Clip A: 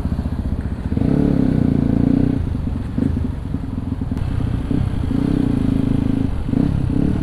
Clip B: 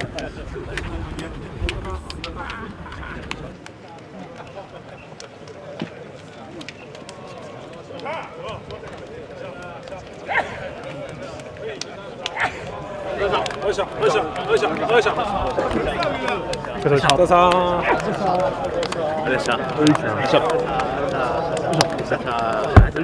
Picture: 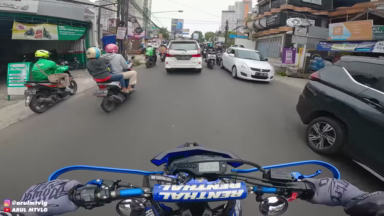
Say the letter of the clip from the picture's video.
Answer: A